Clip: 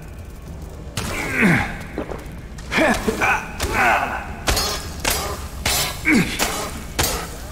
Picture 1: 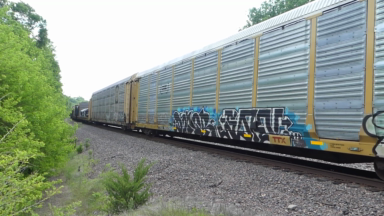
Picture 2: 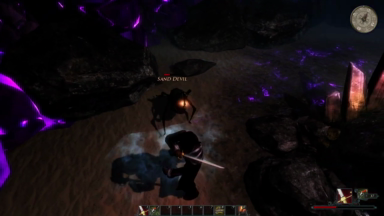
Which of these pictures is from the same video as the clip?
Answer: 2